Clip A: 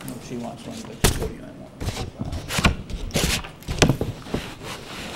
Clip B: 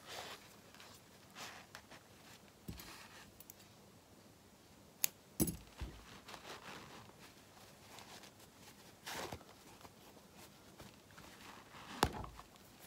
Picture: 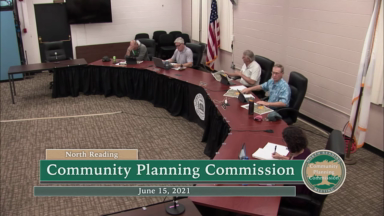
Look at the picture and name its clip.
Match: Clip A